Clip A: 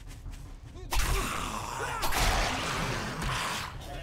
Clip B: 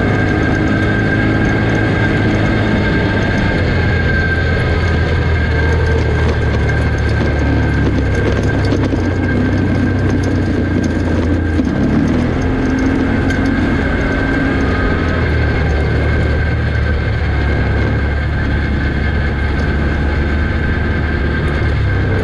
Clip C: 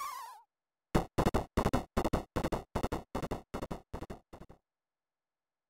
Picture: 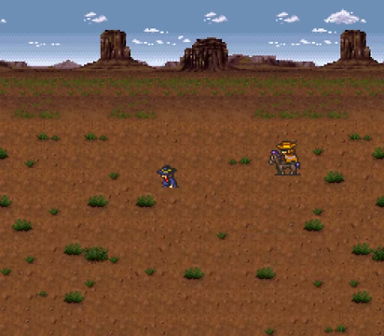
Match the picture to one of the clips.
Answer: C